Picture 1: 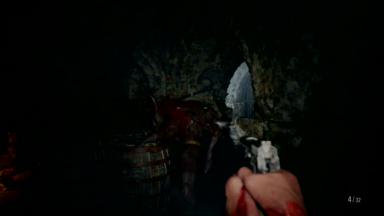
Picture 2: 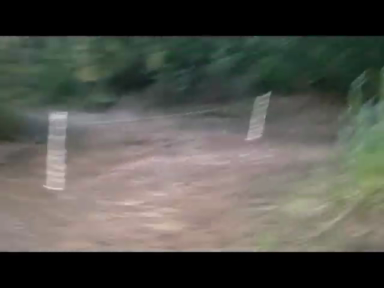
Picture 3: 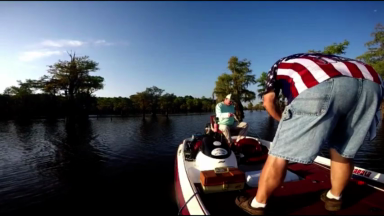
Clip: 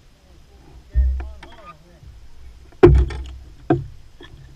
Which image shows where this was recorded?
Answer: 3